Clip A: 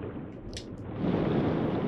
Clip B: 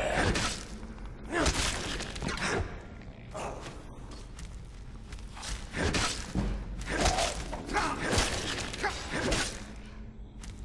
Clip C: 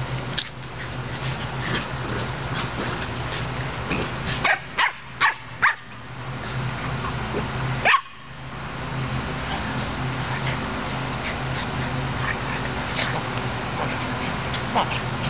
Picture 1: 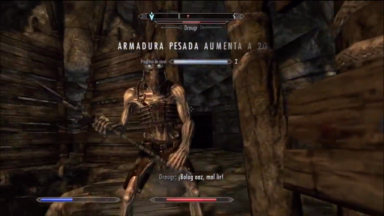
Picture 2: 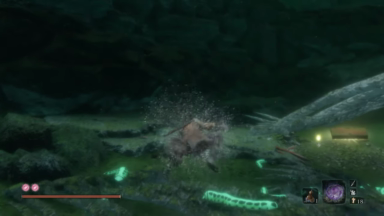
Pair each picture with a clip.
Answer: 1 B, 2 A